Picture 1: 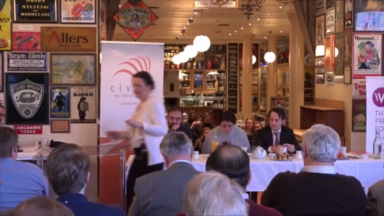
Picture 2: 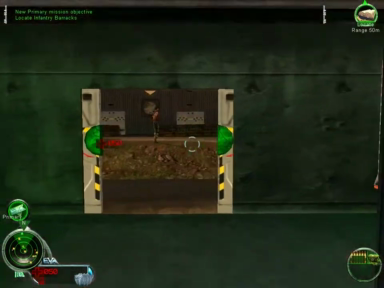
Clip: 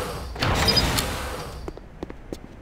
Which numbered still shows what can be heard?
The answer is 2